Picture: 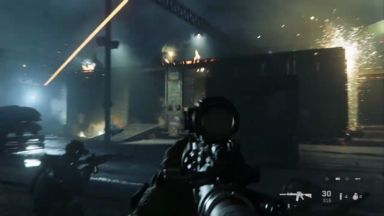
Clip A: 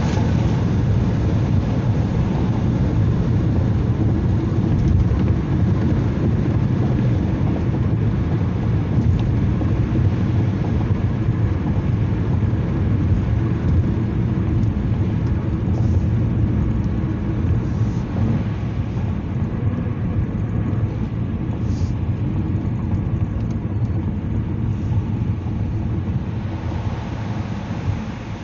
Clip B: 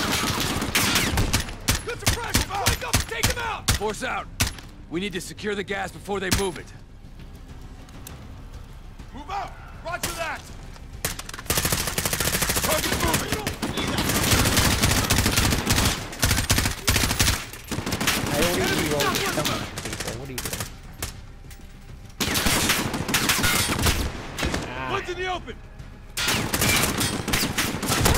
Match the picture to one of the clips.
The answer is B